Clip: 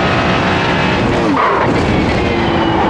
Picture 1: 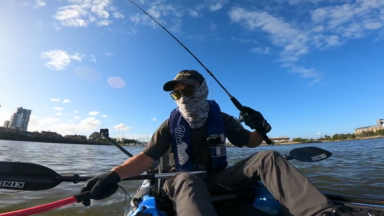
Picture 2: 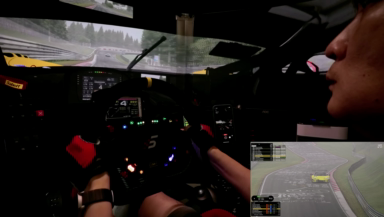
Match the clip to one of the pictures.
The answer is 2